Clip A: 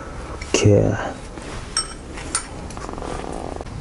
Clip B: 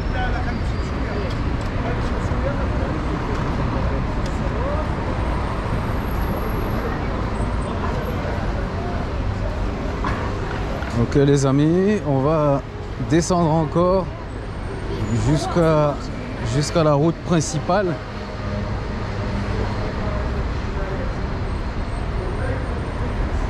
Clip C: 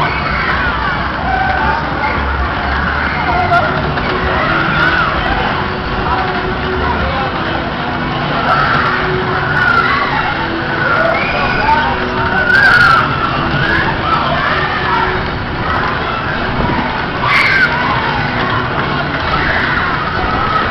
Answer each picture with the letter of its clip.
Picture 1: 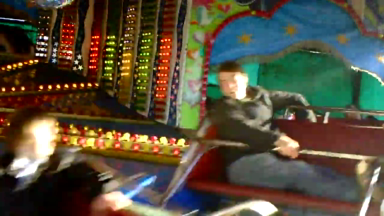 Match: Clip C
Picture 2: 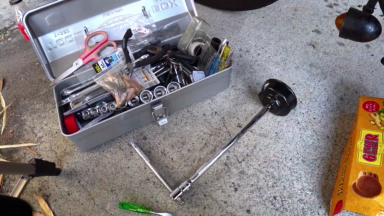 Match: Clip A